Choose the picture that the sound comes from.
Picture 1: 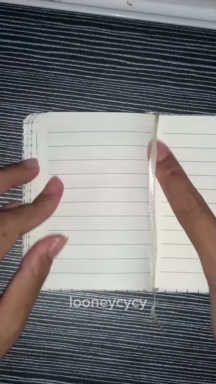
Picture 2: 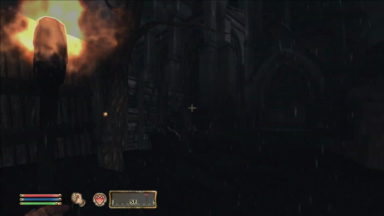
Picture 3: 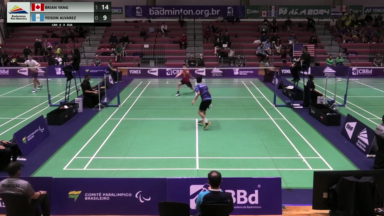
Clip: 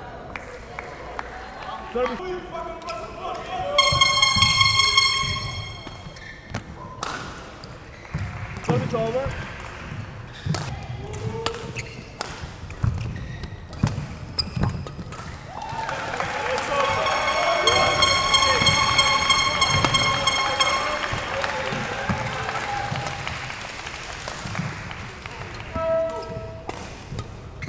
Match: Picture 3